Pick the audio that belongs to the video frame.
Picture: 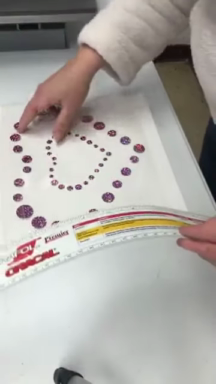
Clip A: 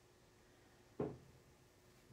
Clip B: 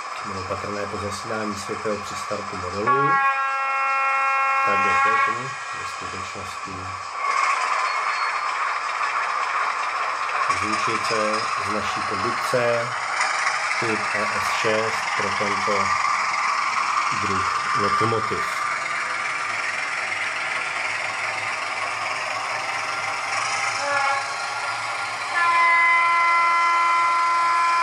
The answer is A